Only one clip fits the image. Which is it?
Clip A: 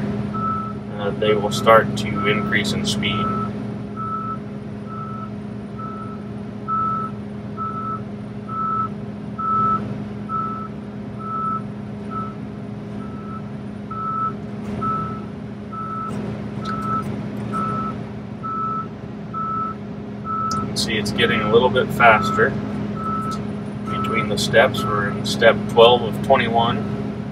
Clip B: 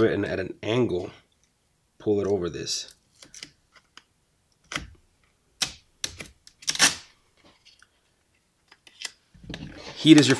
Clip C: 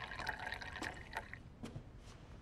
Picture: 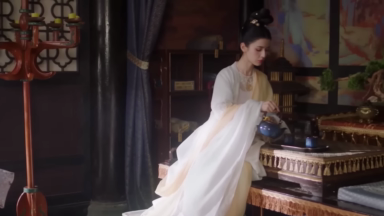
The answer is C